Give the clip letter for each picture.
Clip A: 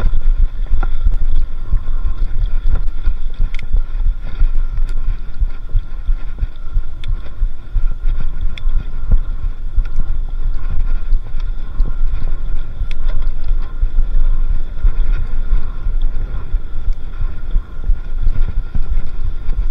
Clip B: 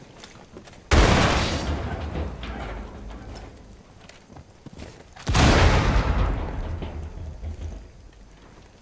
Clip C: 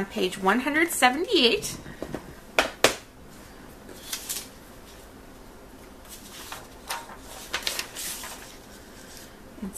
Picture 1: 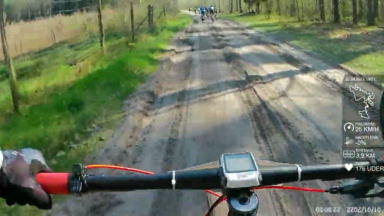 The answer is A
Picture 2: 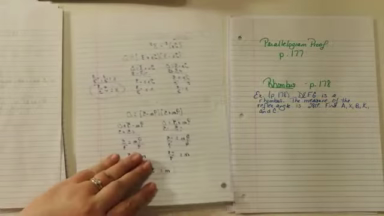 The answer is C